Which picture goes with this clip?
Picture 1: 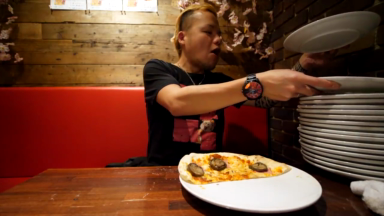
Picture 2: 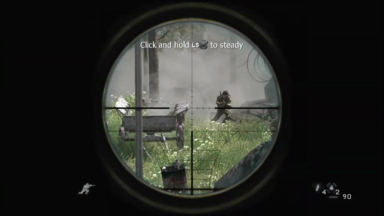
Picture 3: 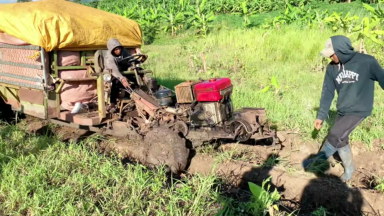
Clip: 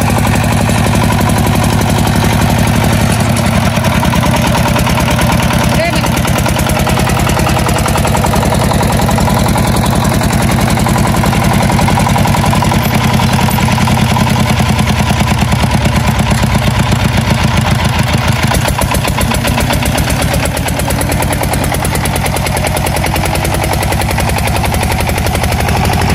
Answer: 3